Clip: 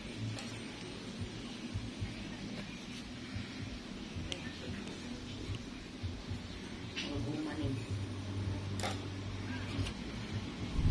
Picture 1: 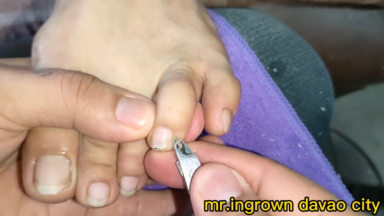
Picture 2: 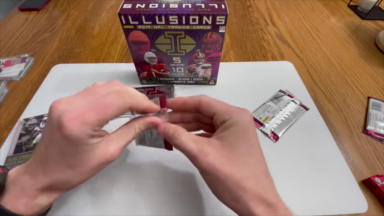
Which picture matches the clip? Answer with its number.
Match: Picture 1